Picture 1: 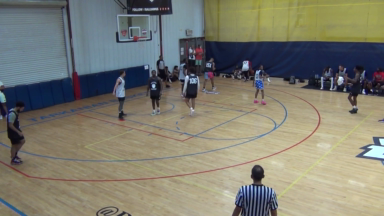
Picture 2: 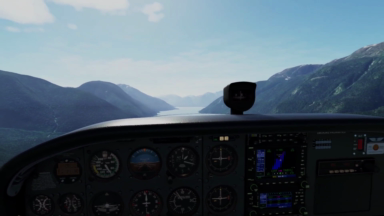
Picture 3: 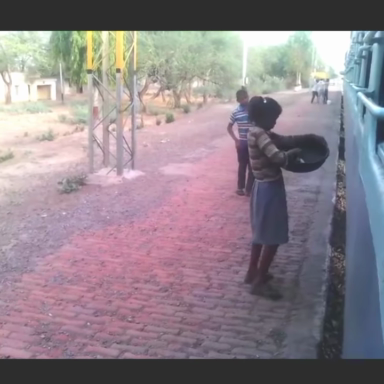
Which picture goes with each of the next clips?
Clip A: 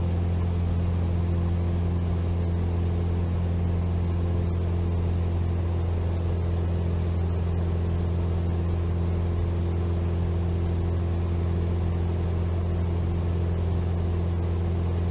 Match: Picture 2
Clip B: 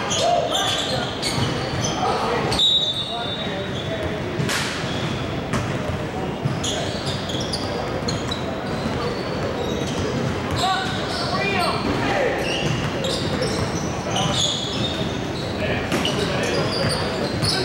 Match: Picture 1